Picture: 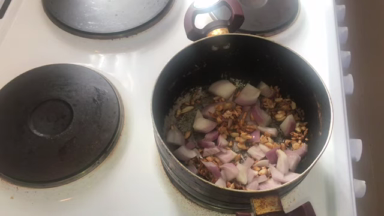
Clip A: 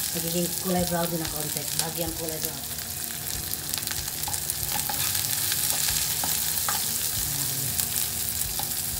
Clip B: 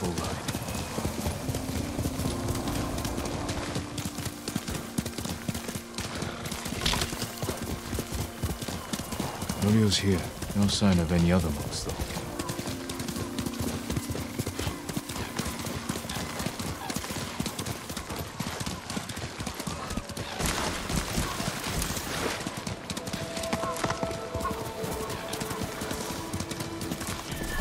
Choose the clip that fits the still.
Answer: A